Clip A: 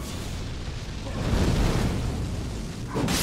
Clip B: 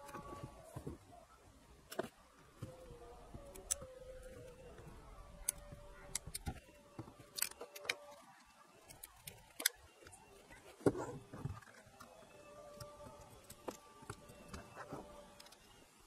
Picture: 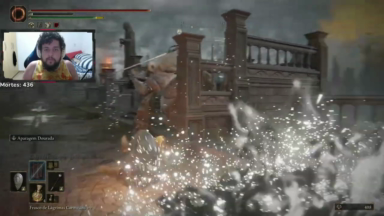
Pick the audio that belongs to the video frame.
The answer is A